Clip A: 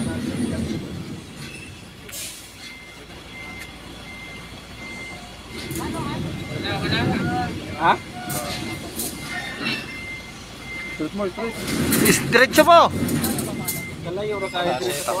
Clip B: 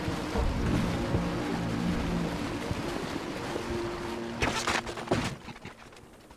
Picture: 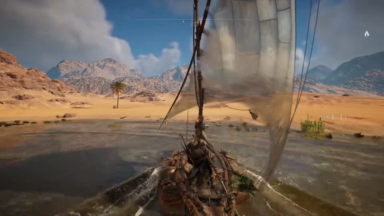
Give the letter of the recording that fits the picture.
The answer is B